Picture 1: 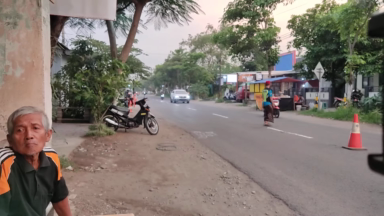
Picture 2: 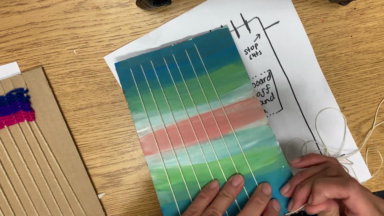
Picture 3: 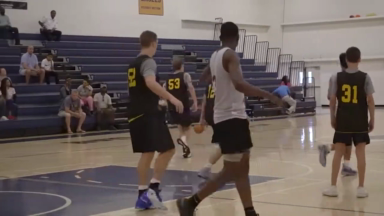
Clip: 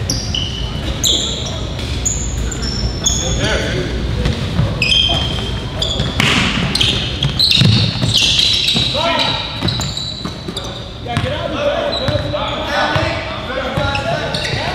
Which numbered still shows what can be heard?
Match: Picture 3